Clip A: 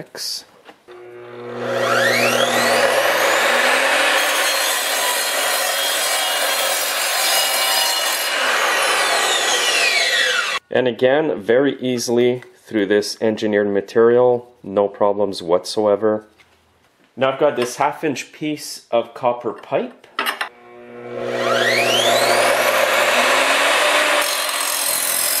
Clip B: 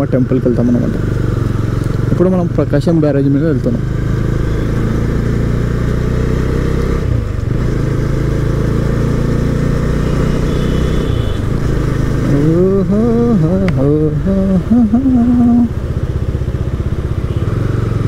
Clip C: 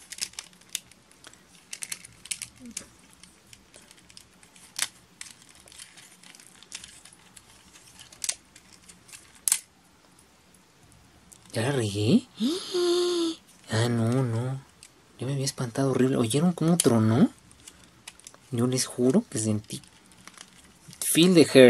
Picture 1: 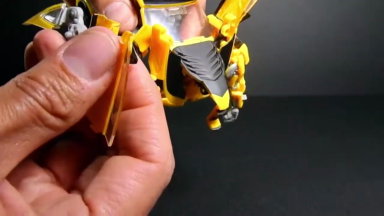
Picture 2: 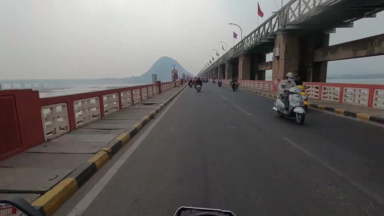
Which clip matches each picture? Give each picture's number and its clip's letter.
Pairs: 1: C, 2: B